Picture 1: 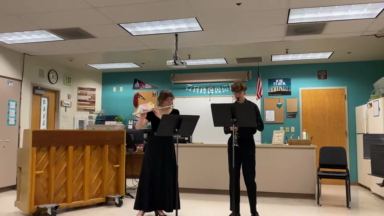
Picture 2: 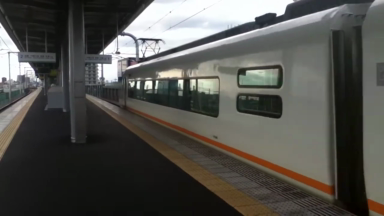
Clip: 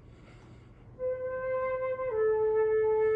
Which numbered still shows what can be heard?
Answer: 1